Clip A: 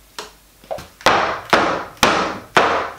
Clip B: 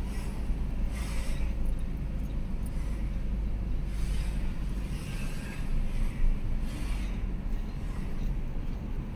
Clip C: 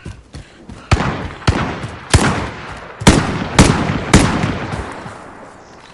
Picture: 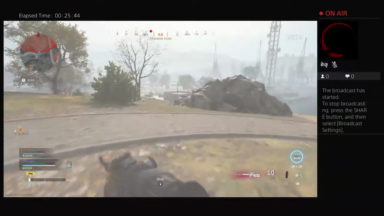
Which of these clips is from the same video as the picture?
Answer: C